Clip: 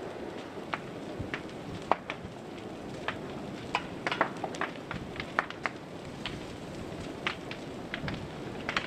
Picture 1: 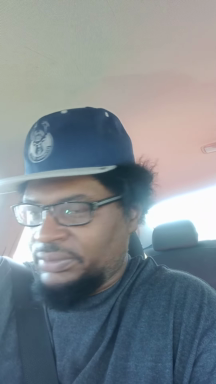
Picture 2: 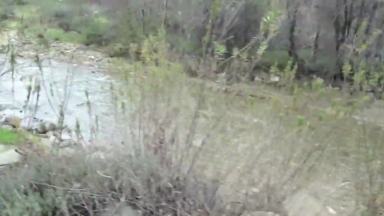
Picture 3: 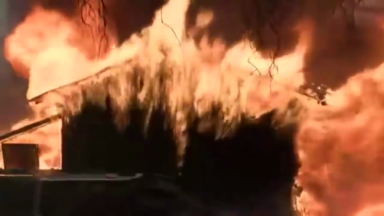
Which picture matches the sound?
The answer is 3